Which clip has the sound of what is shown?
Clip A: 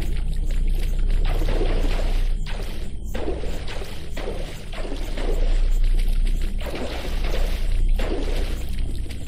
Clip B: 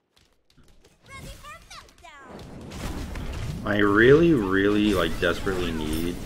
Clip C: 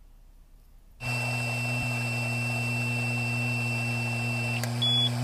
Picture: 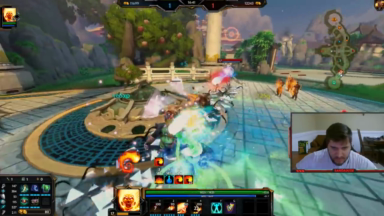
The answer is B